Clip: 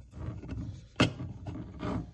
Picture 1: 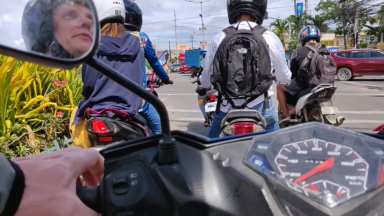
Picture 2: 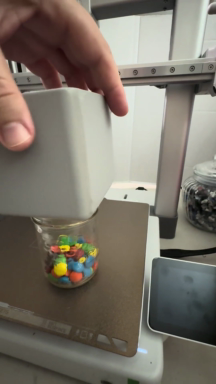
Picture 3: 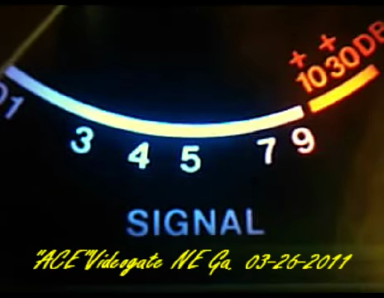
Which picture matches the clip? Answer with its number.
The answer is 2